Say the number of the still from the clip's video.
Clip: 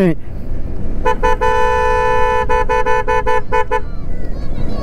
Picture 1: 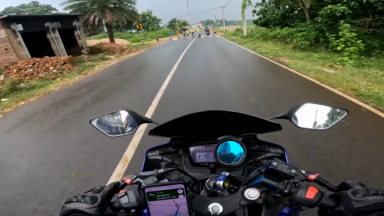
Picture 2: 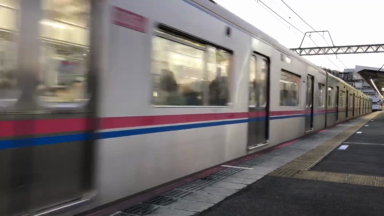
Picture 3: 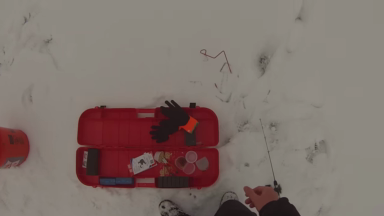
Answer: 1